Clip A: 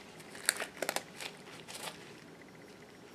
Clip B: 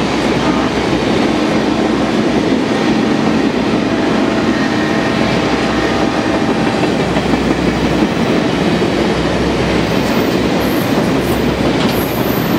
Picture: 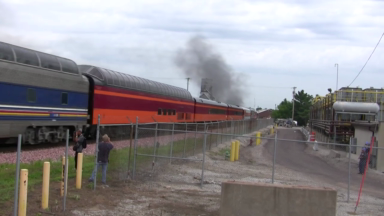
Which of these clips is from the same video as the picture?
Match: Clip B